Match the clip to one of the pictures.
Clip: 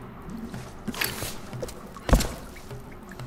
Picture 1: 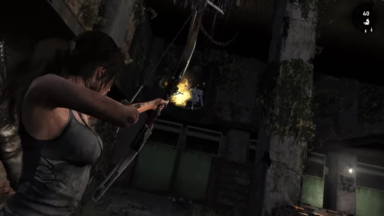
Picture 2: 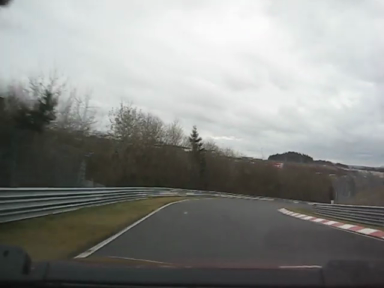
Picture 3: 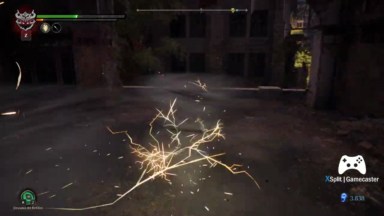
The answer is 1